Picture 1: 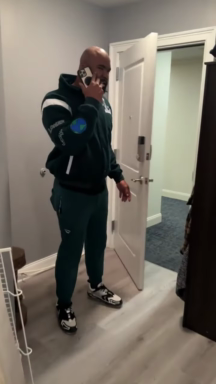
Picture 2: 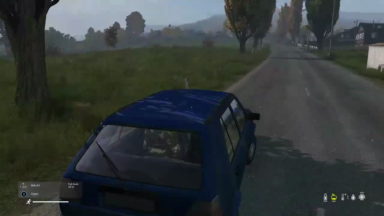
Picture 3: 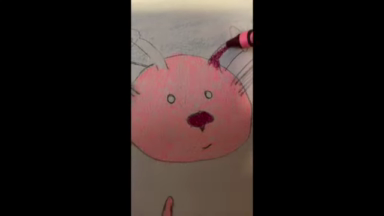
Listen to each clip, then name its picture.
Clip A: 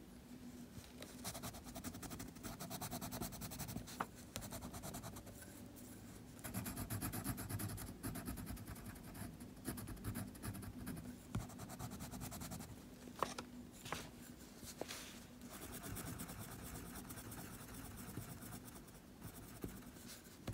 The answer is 3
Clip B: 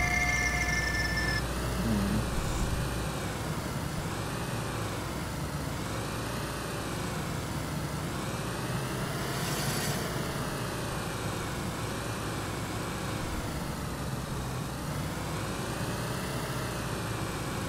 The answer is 2